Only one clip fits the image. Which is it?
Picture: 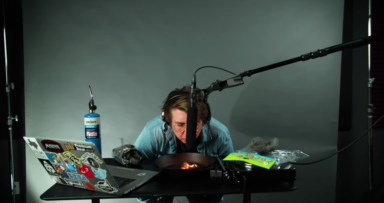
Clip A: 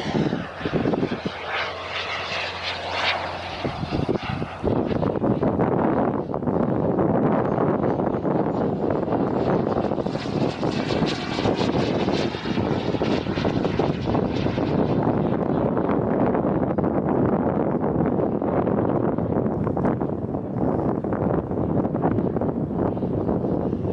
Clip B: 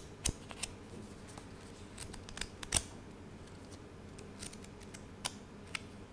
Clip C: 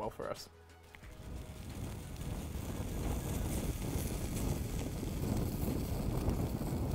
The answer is C